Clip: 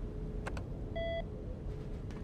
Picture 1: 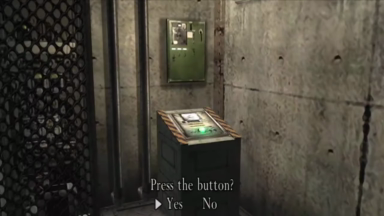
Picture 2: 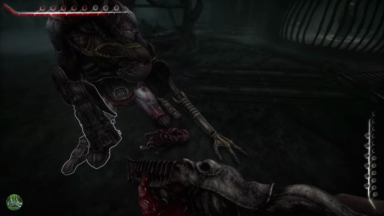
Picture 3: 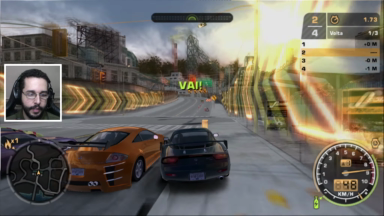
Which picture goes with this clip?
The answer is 1